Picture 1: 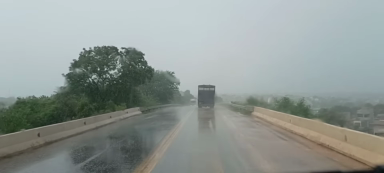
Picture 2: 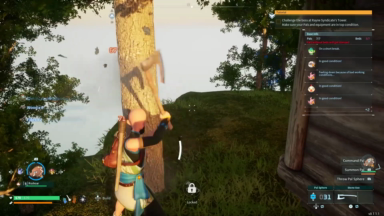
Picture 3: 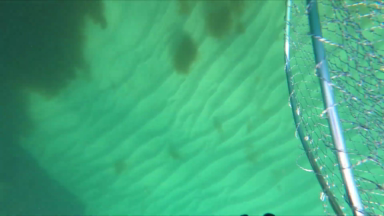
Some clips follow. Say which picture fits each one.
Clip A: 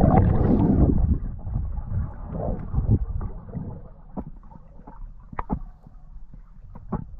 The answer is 3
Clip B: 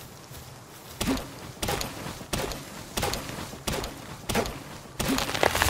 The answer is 2